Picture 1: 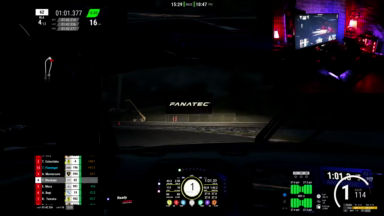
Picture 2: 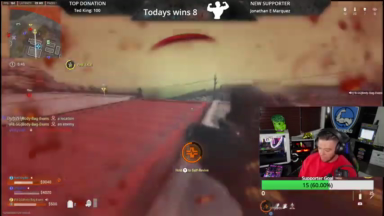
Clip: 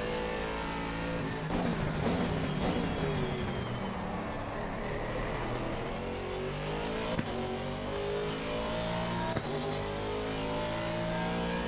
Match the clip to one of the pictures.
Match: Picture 1